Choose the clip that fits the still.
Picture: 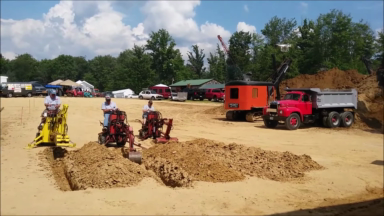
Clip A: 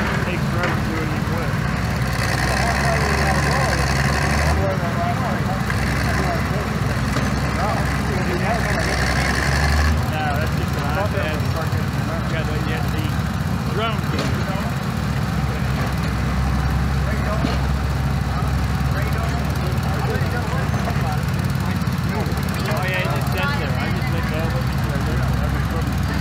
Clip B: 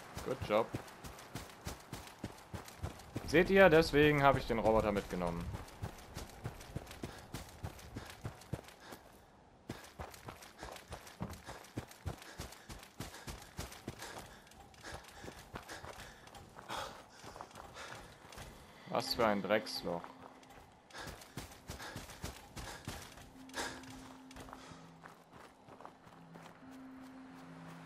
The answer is A